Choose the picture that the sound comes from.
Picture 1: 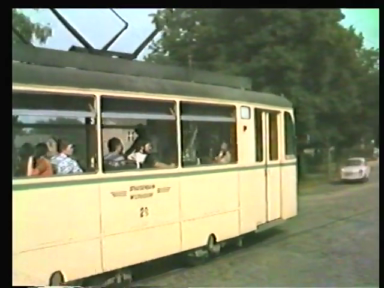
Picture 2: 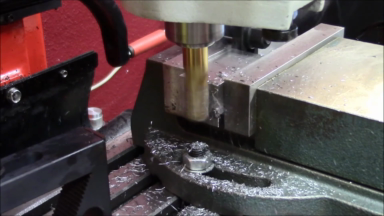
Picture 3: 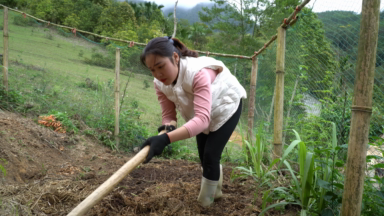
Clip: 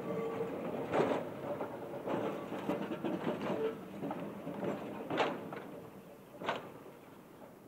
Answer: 1